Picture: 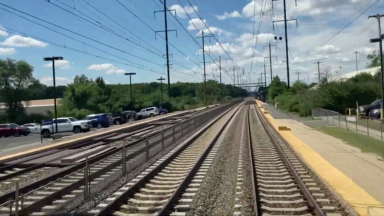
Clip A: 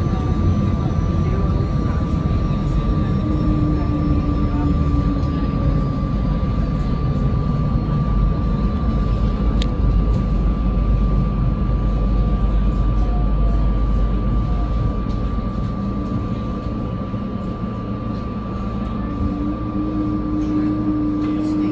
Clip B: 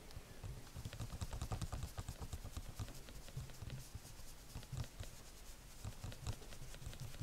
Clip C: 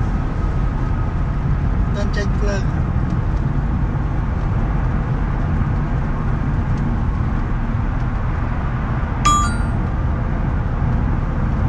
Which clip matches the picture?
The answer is A